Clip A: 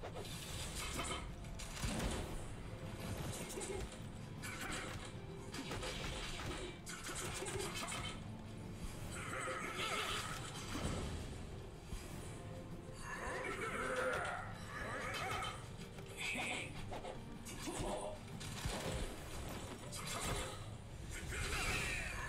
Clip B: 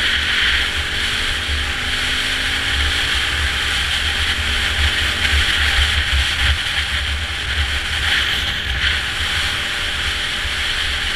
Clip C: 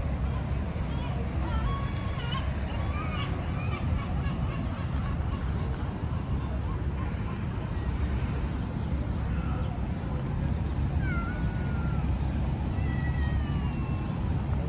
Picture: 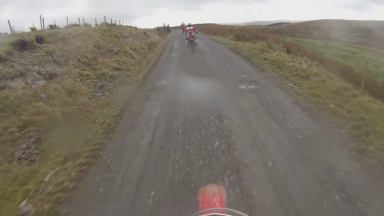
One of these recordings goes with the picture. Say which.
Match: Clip B